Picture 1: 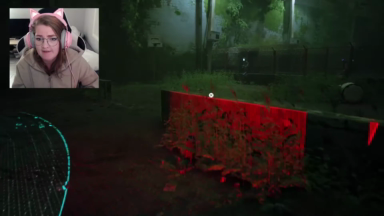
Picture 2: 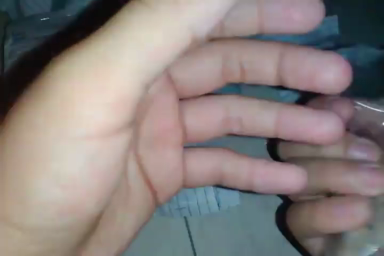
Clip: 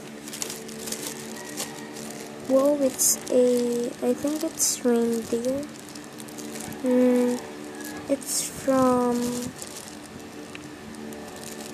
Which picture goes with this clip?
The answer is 2